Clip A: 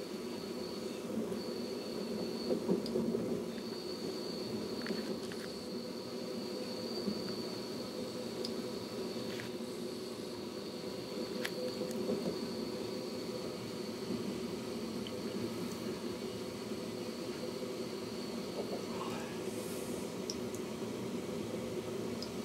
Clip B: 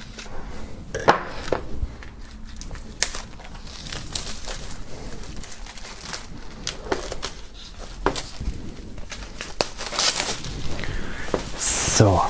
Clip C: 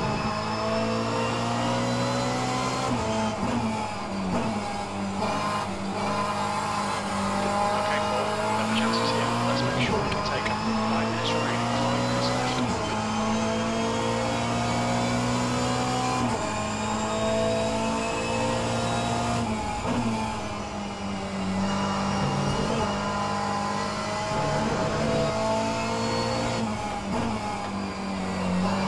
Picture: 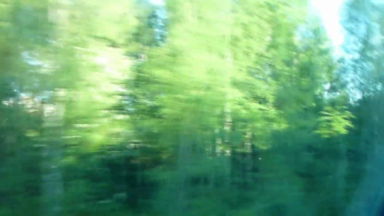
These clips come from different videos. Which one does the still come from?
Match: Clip A